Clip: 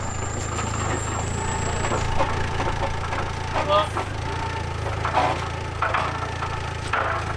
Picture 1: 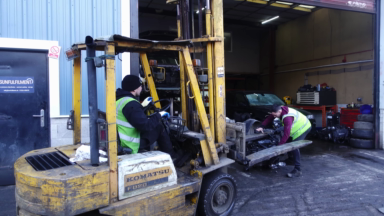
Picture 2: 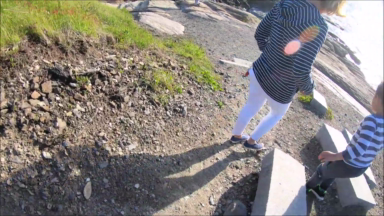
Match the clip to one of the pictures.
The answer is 1